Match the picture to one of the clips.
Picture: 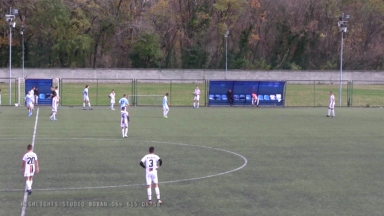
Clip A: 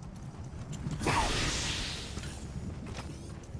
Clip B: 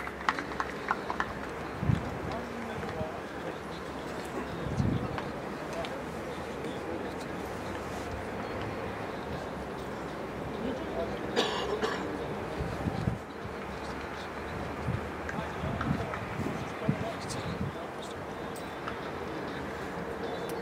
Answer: B